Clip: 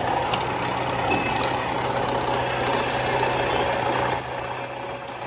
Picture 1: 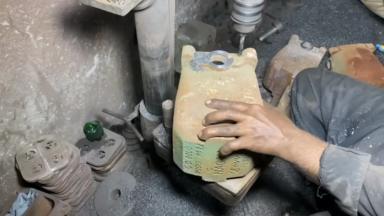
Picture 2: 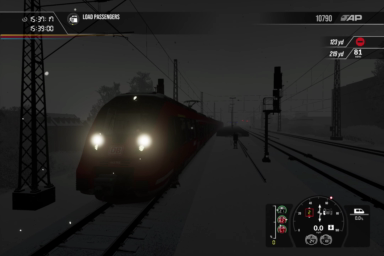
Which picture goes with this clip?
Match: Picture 1